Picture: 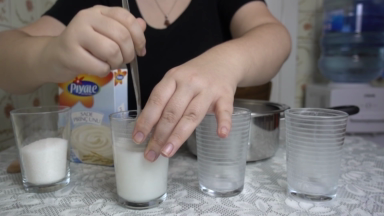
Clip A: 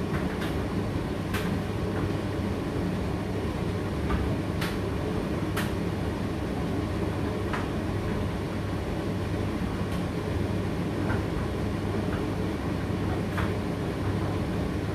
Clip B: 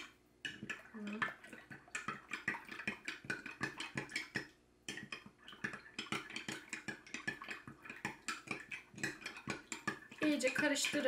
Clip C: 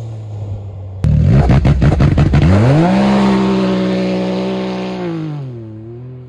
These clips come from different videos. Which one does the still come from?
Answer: B